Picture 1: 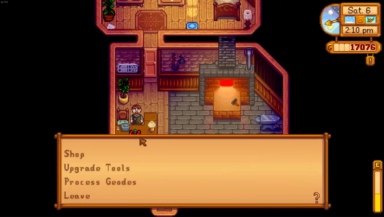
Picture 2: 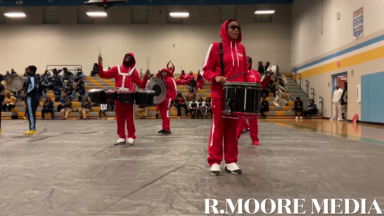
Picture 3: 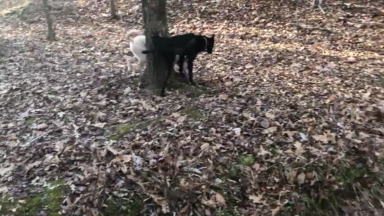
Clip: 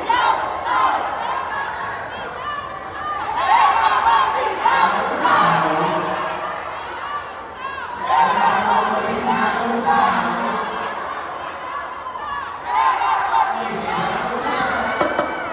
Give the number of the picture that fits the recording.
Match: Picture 2